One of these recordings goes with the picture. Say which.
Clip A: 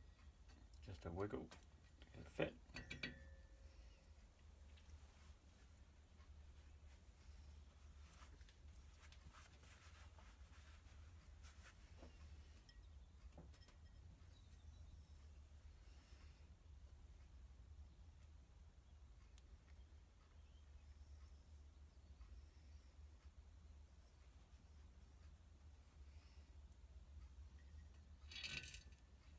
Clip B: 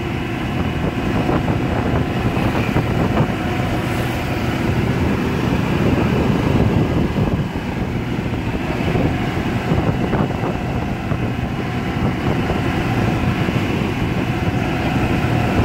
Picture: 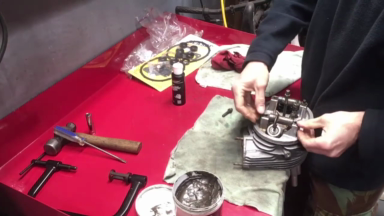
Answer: A